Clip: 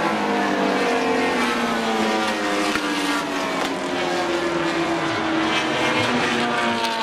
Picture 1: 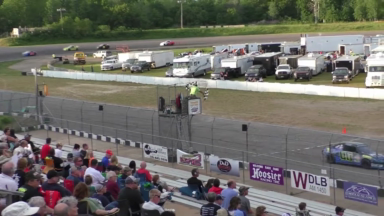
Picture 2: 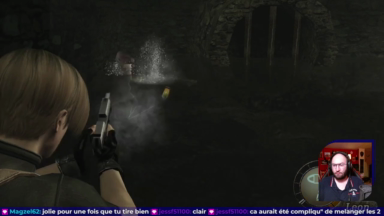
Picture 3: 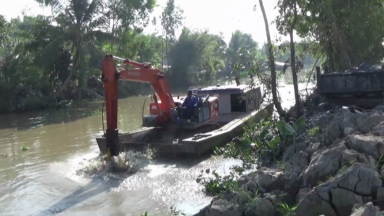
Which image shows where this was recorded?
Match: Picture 1